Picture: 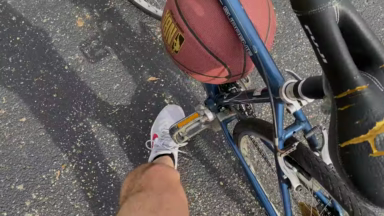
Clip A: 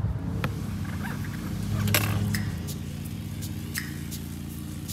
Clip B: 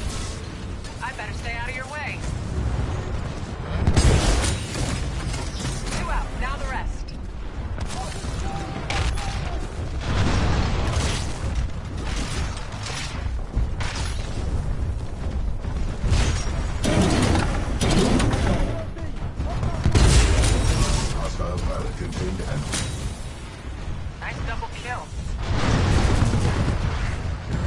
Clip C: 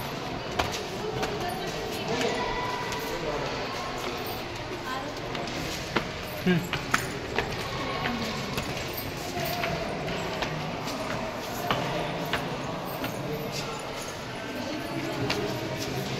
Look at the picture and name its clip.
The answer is A